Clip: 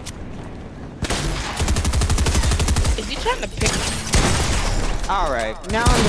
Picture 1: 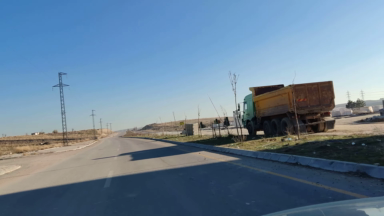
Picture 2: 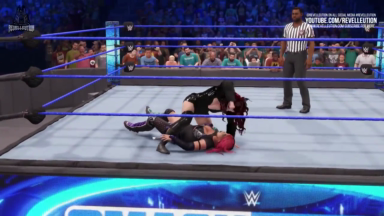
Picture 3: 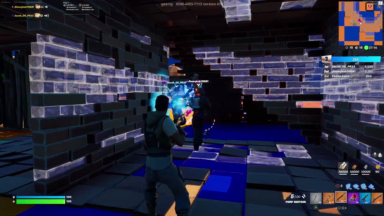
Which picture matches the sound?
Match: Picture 3